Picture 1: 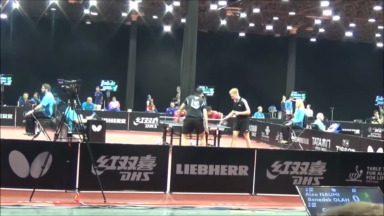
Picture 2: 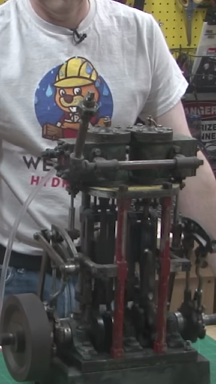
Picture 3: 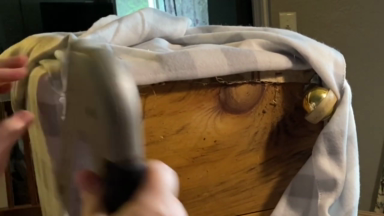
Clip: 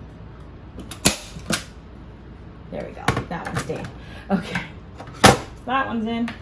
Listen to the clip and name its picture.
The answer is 3